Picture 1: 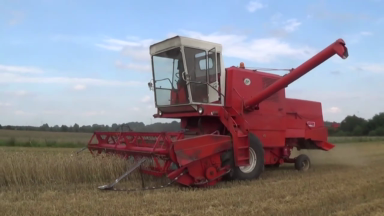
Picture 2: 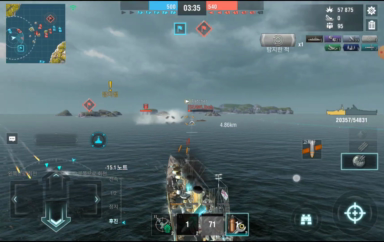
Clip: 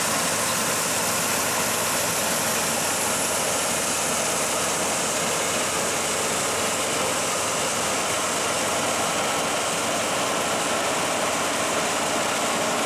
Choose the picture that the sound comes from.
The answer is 1